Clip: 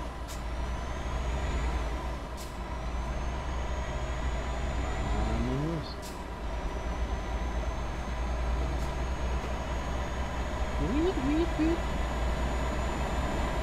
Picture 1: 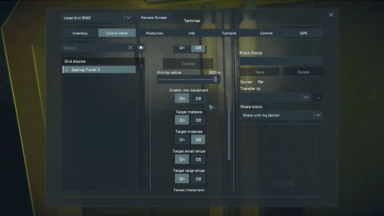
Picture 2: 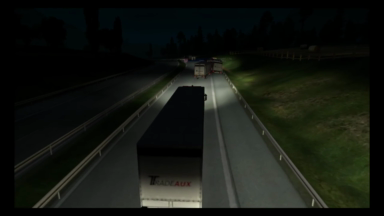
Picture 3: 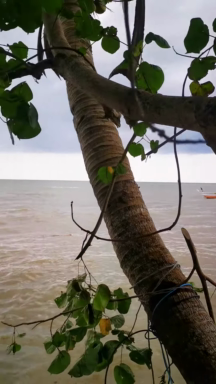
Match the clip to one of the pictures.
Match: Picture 2